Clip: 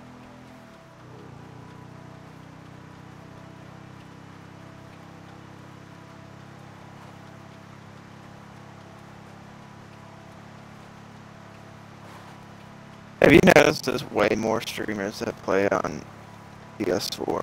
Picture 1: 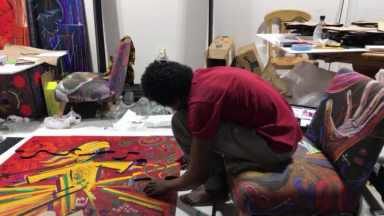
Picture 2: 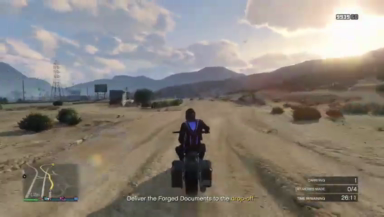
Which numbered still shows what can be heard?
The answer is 2